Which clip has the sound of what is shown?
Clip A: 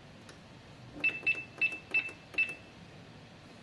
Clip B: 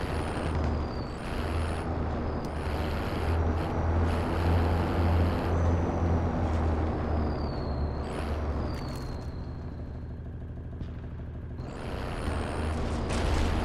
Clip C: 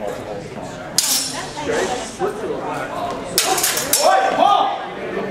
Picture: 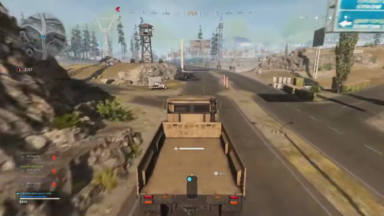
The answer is B